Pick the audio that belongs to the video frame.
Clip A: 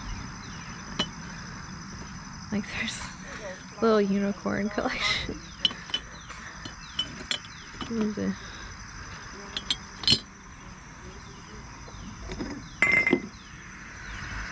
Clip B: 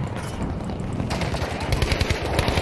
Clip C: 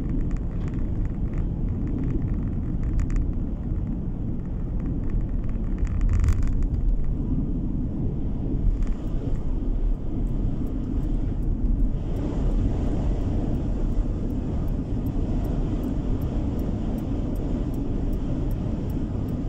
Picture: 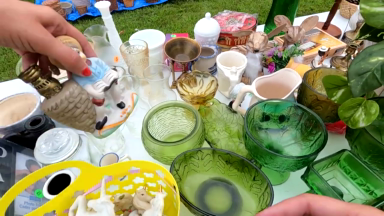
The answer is A